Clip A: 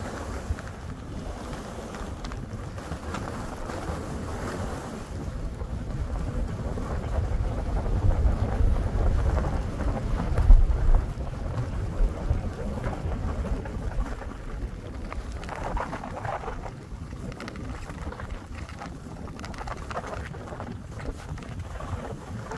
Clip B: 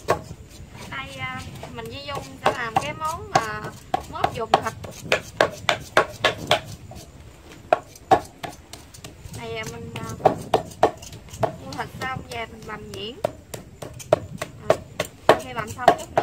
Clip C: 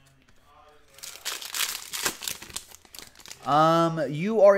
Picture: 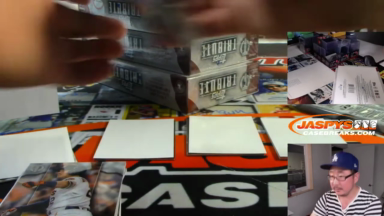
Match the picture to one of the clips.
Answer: C